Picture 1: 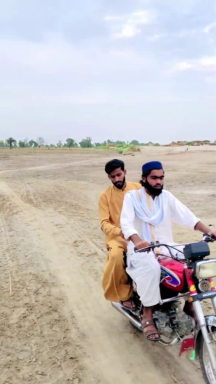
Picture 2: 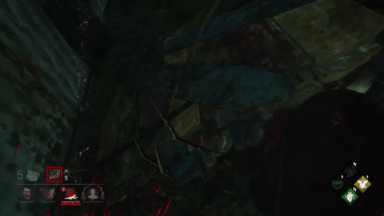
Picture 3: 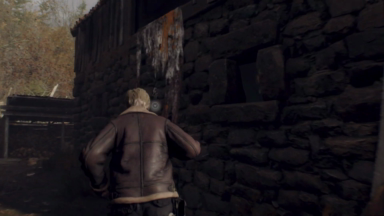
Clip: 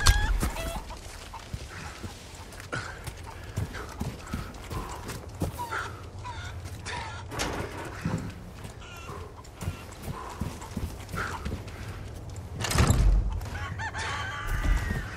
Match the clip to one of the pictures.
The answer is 3